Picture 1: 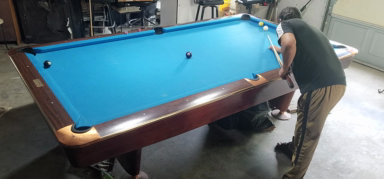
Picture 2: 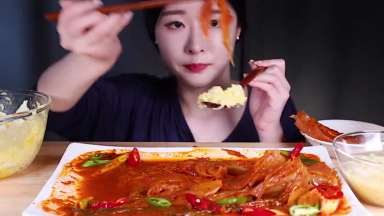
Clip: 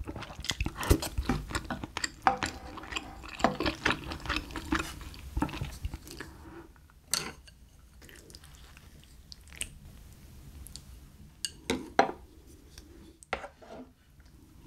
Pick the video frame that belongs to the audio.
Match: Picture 2